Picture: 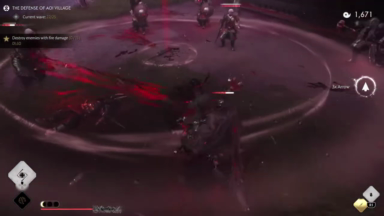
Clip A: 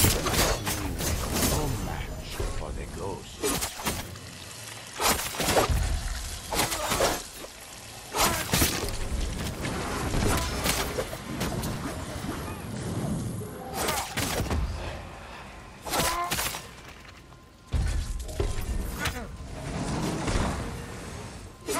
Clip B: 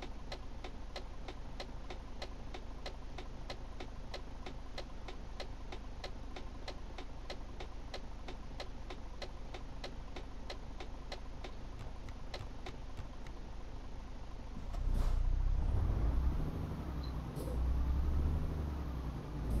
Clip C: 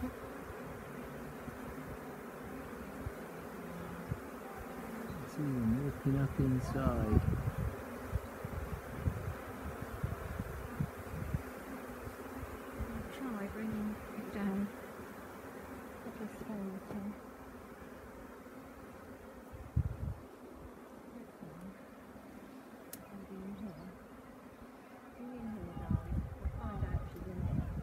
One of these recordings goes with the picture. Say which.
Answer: A